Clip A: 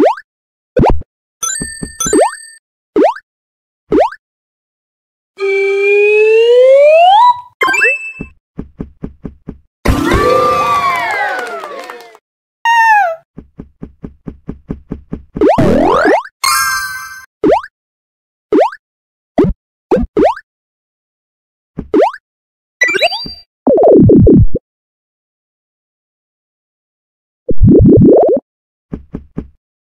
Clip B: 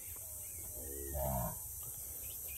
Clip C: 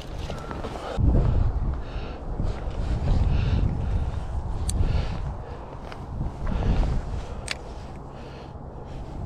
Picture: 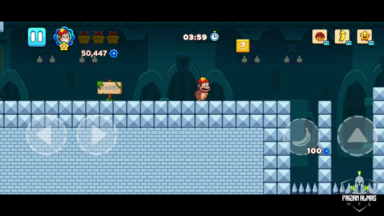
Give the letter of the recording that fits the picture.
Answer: A